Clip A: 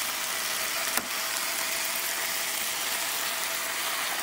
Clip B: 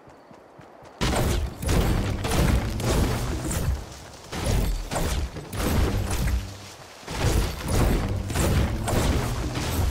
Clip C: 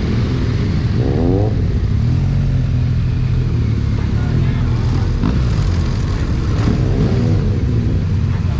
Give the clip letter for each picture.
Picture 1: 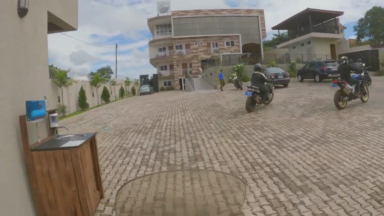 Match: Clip C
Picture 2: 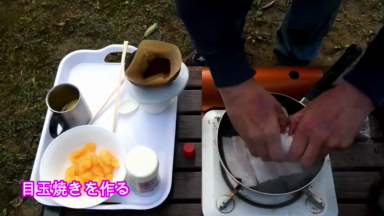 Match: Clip A